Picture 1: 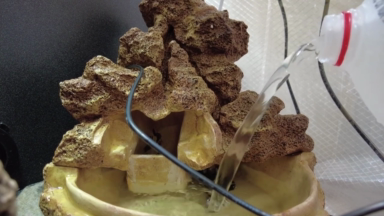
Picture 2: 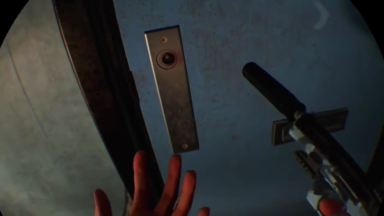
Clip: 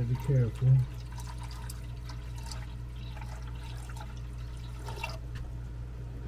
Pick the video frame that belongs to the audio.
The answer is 1